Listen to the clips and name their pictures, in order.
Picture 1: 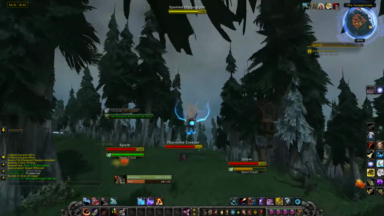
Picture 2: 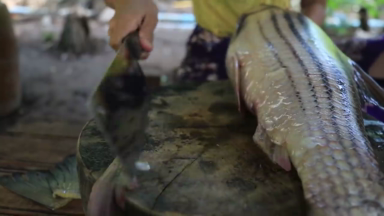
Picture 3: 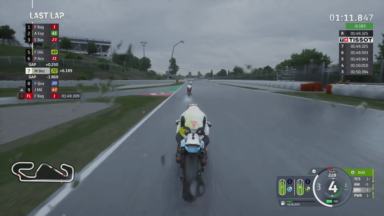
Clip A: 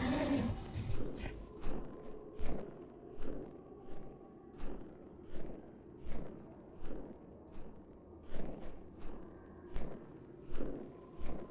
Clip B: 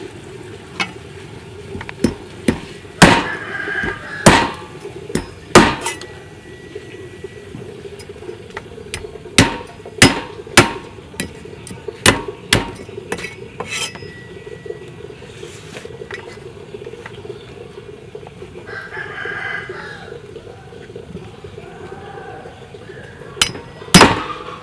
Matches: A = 1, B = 2